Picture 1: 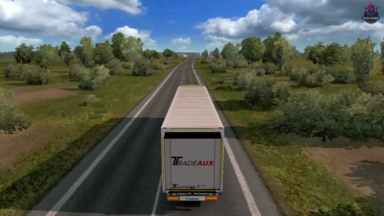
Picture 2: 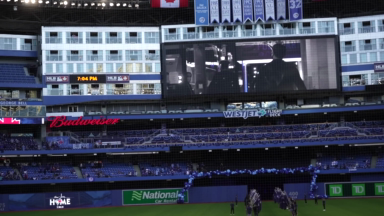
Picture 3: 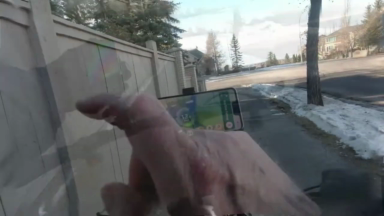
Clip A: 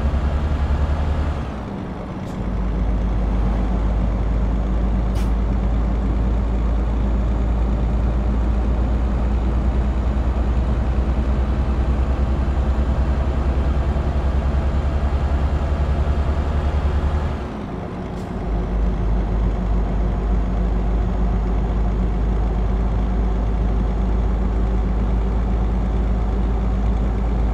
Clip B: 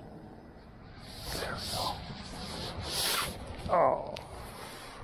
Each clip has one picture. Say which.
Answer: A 1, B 3